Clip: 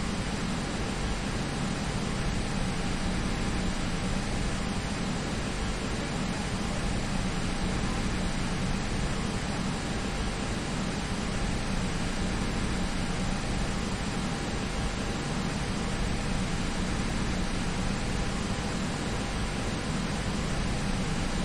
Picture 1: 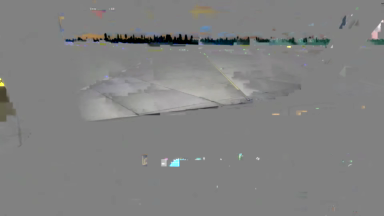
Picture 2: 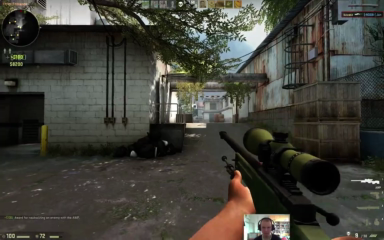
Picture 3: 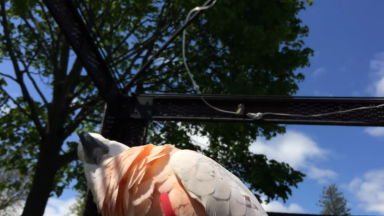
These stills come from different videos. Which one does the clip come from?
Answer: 1